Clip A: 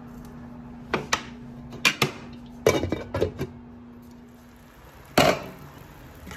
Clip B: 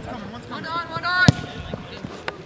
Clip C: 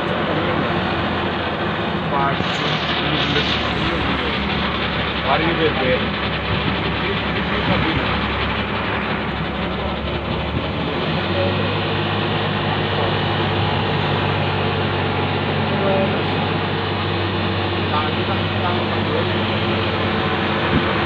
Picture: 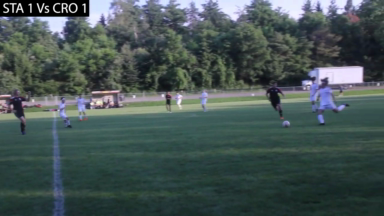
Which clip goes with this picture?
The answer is B